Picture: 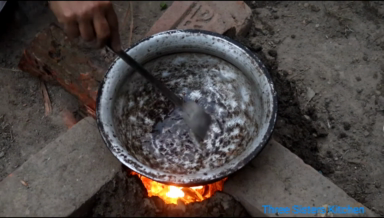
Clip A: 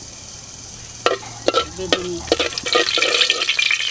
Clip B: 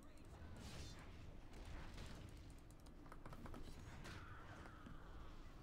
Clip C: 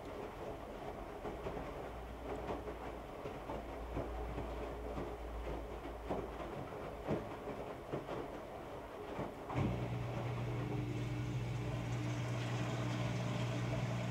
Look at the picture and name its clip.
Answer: A